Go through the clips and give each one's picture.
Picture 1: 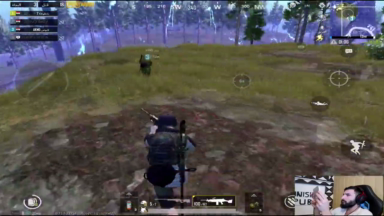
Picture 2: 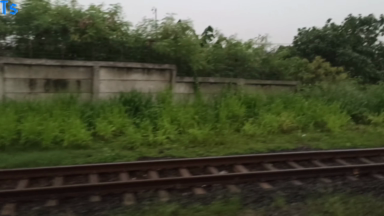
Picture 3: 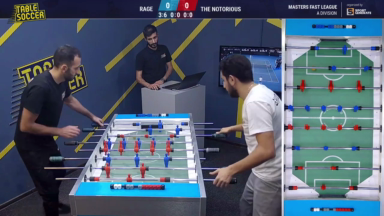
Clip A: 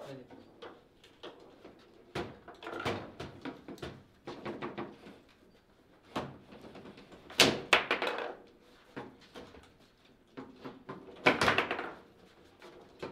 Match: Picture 3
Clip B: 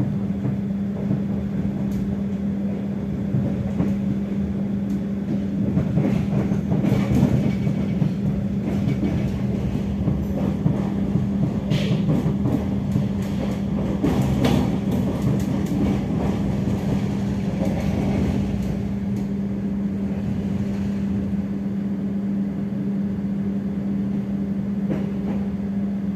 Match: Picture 2